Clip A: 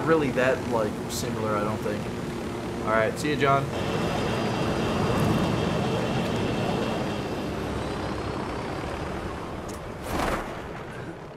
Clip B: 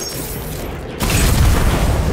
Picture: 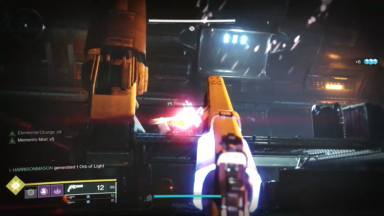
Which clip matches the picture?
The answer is B